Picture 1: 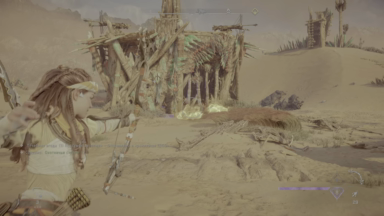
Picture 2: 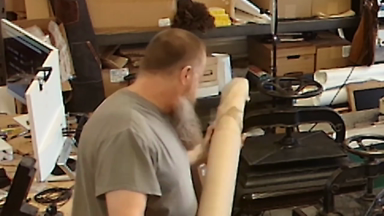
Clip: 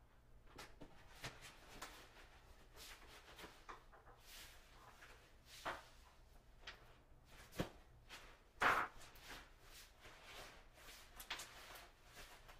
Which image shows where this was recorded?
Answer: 2